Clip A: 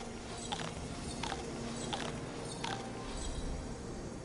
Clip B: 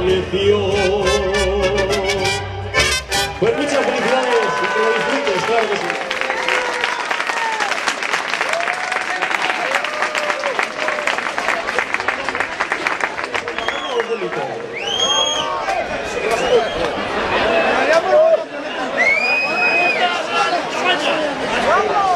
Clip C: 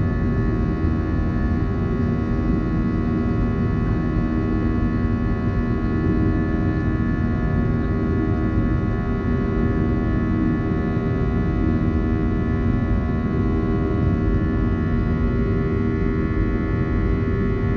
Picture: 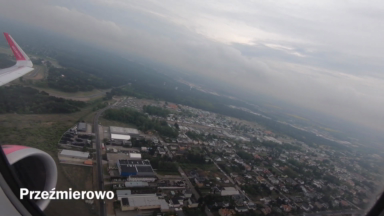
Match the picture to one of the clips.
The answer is C